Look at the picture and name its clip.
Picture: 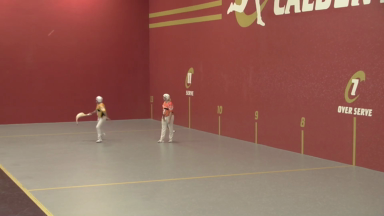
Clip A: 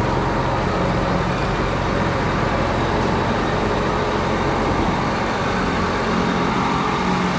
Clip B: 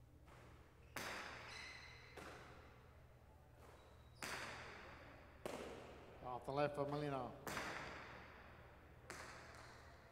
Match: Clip B